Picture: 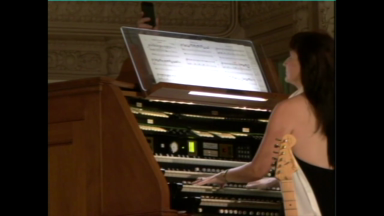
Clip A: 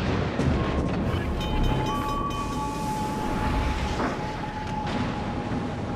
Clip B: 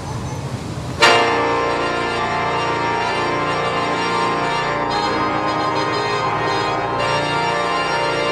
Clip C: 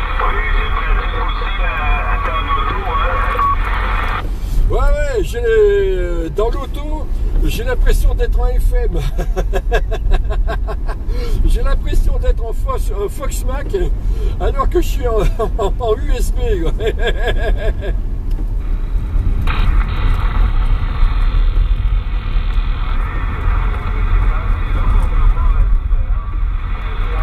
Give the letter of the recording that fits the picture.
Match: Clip B